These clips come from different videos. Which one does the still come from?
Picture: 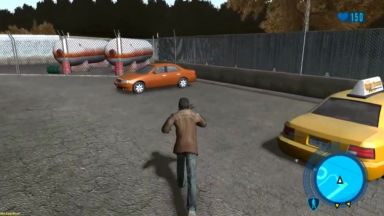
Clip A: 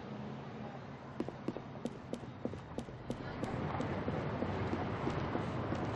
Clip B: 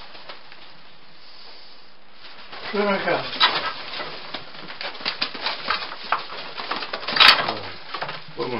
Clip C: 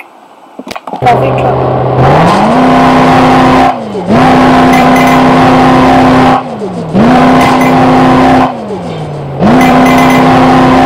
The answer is A